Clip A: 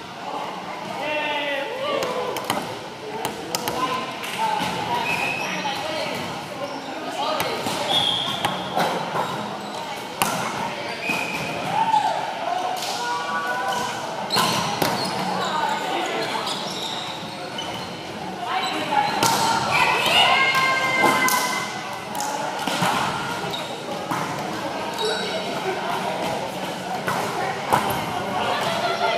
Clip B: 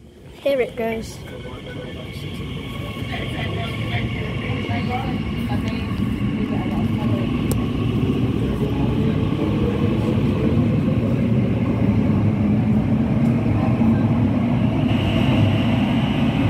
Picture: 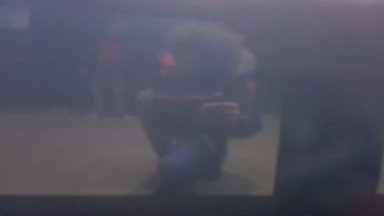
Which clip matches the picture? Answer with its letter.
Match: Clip B